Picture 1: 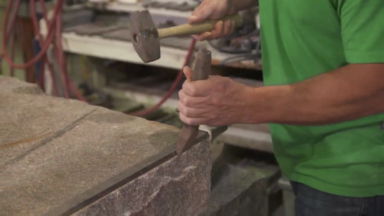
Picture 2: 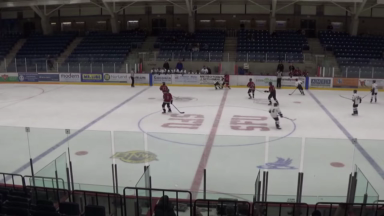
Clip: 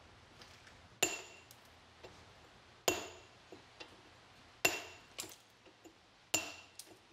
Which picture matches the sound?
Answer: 1